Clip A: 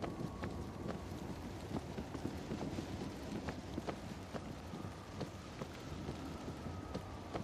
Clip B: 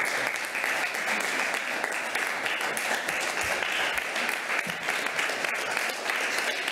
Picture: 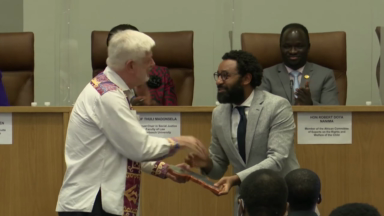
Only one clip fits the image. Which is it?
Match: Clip B